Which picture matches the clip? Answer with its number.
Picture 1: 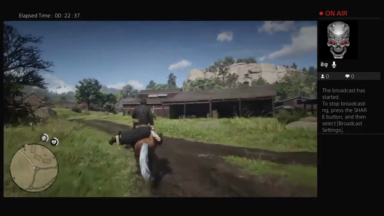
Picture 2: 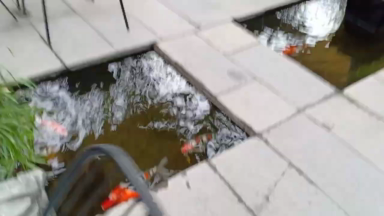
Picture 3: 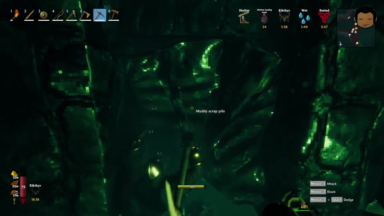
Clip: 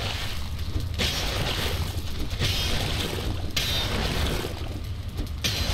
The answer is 3